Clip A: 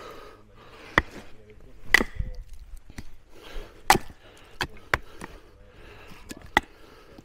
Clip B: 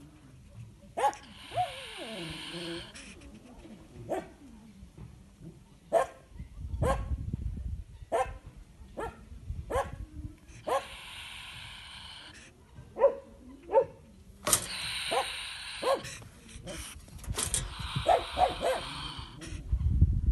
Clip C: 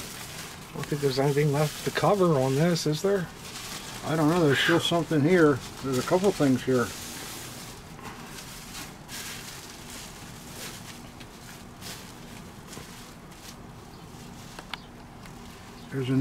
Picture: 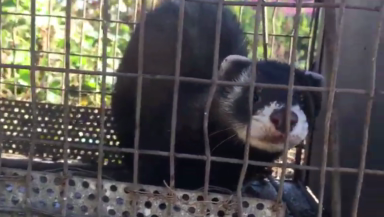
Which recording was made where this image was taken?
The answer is B